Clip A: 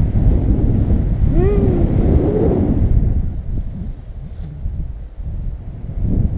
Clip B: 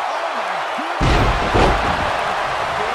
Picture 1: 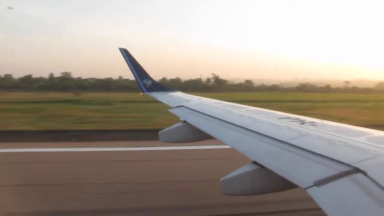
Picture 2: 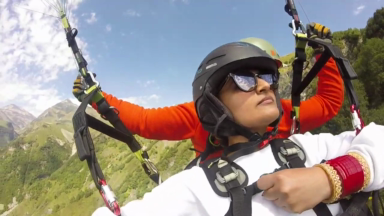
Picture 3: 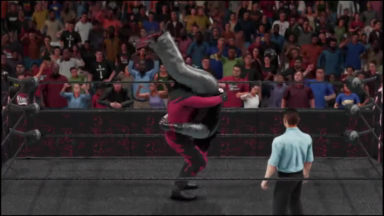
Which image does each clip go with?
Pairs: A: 2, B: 3